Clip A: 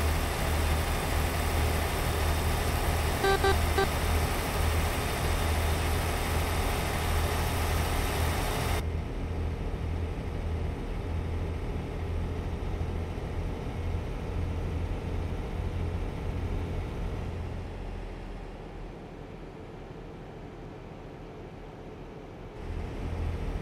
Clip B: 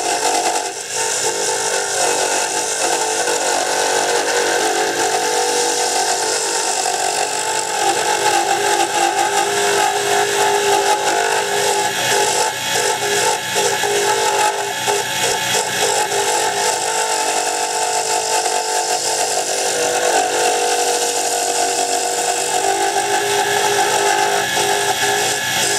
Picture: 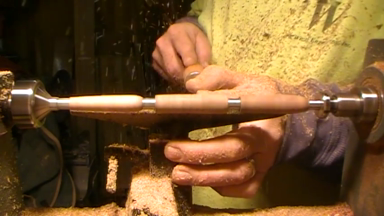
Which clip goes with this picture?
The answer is B